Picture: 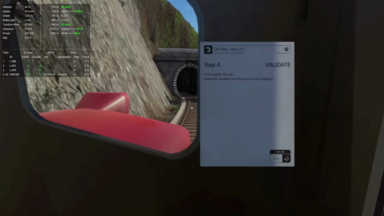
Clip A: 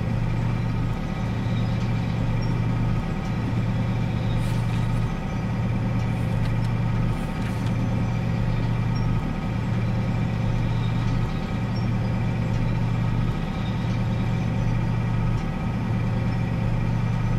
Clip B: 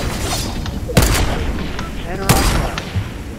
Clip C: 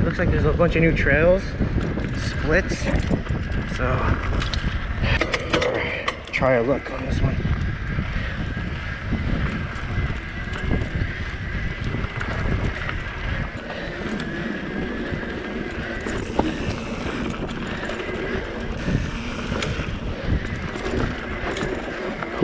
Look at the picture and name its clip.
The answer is A